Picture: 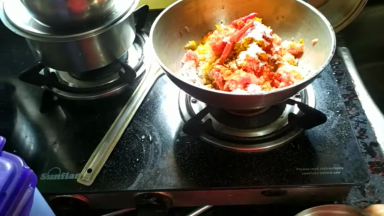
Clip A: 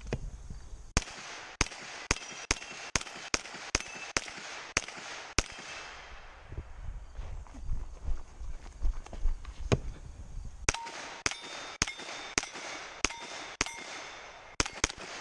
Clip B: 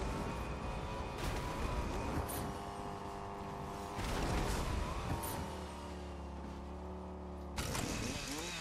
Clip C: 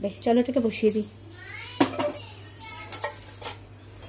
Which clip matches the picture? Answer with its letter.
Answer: C